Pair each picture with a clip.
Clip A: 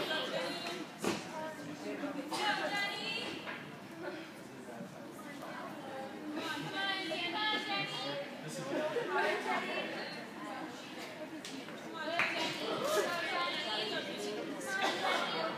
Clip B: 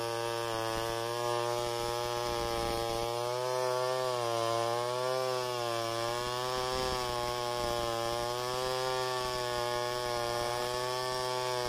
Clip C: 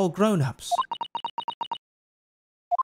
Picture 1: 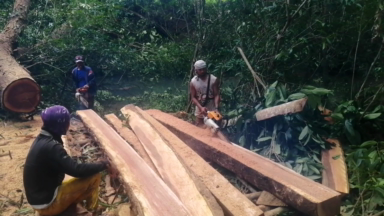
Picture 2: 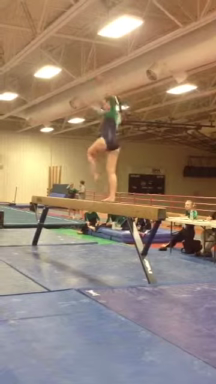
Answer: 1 B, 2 A